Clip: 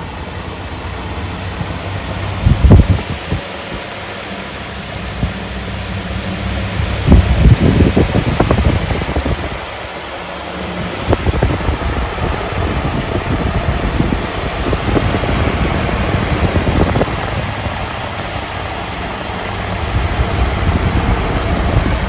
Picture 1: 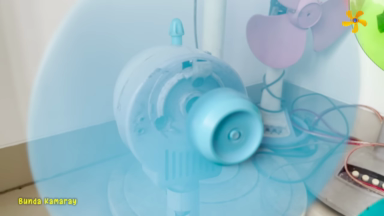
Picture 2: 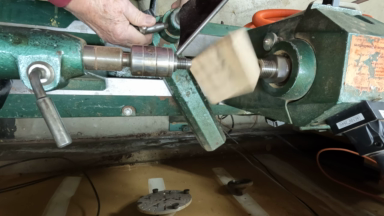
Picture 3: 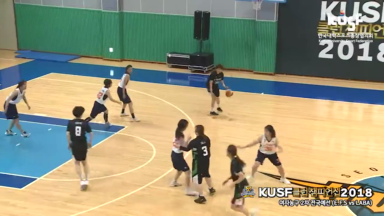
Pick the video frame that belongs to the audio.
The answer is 1